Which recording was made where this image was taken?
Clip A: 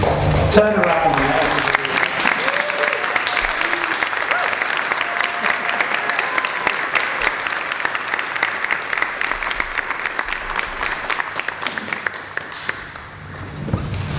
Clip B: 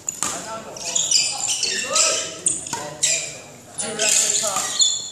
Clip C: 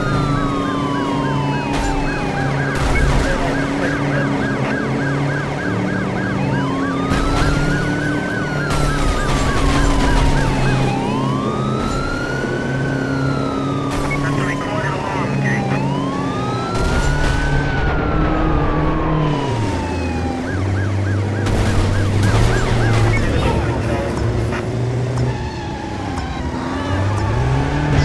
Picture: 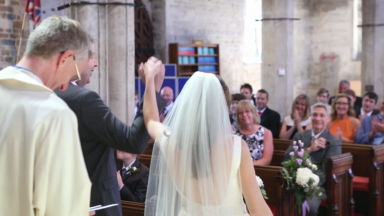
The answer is A